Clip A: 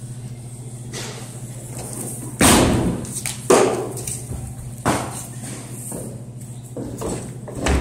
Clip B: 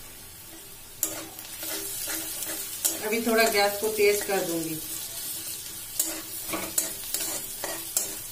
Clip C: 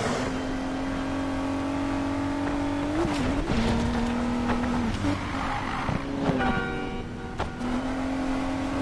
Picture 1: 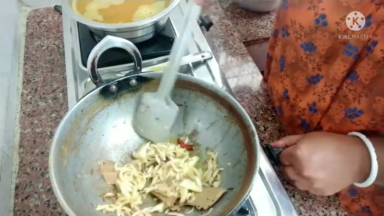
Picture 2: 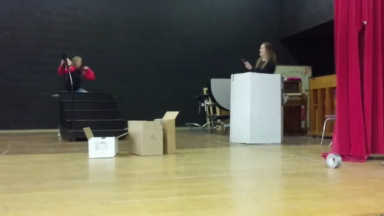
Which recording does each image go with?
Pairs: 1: B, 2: A